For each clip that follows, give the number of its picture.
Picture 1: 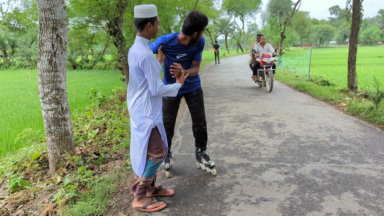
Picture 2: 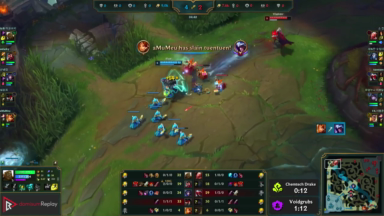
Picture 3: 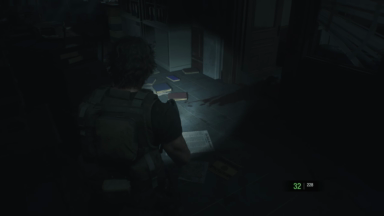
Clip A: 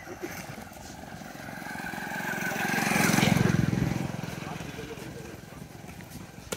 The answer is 1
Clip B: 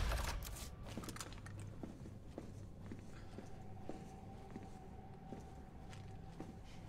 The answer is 3